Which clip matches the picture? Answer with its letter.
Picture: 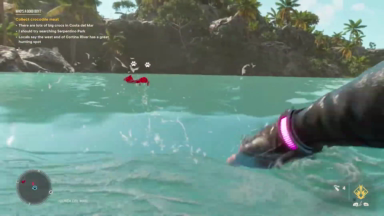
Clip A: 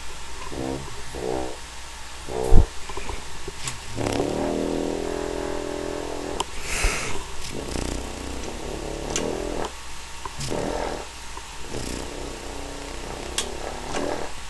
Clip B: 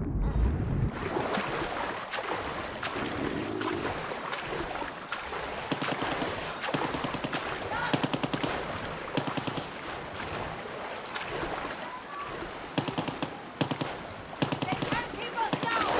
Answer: B